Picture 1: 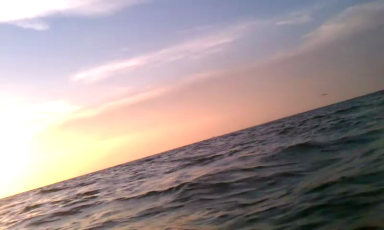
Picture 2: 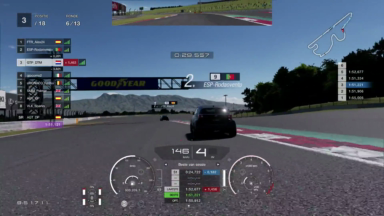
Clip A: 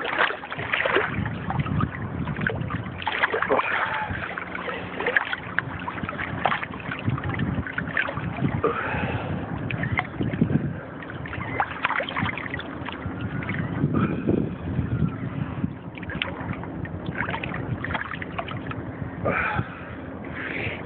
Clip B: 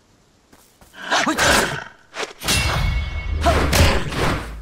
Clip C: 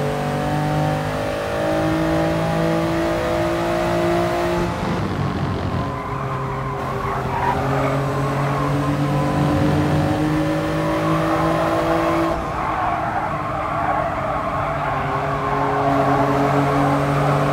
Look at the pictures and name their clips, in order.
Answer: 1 A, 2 C